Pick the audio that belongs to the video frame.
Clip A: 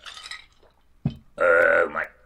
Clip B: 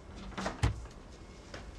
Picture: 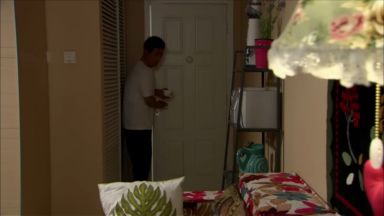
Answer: B